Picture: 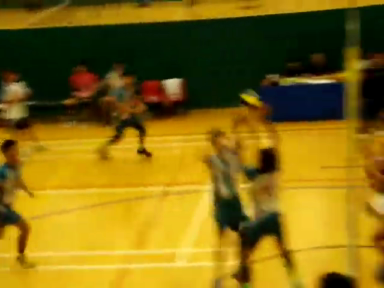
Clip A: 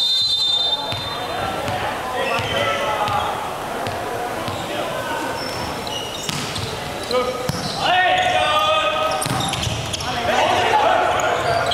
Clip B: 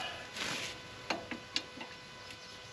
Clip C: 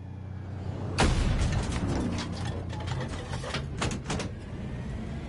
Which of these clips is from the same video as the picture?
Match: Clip A